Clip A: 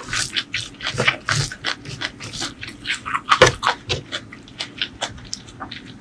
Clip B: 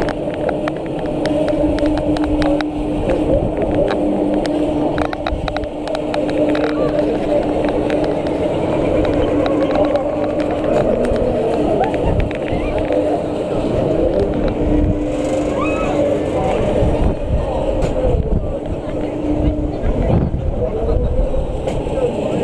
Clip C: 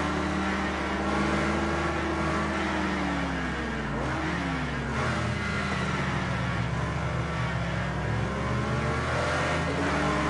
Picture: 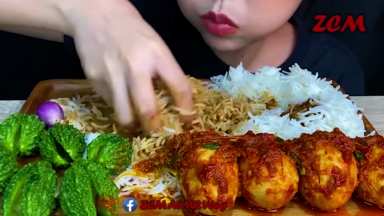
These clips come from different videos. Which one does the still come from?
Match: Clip A